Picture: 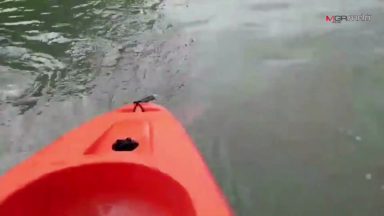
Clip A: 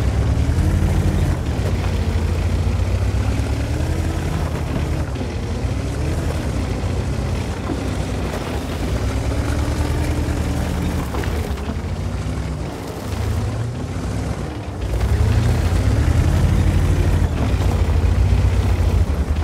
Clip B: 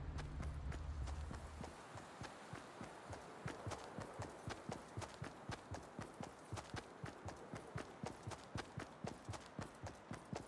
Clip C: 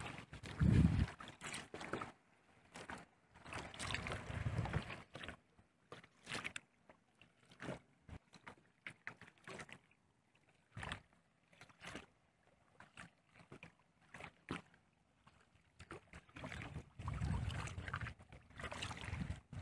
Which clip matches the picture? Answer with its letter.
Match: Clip C